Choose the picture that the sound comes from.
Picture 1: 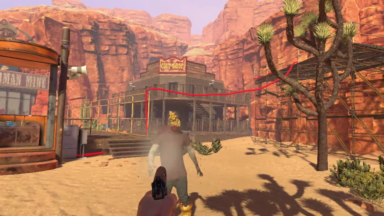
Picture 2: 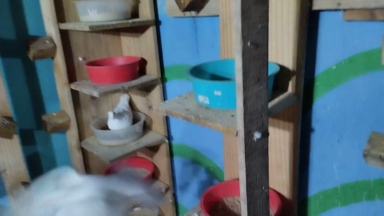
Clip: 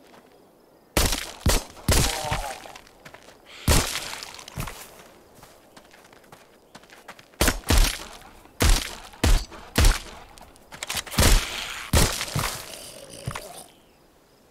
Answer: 1